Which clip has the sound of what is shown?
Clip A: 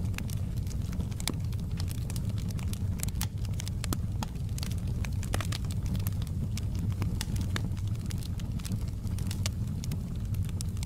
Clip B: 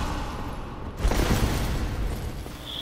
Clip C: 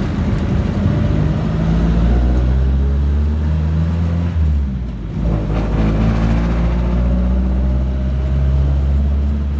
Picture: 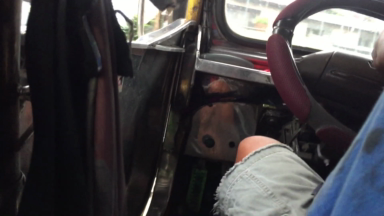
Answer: C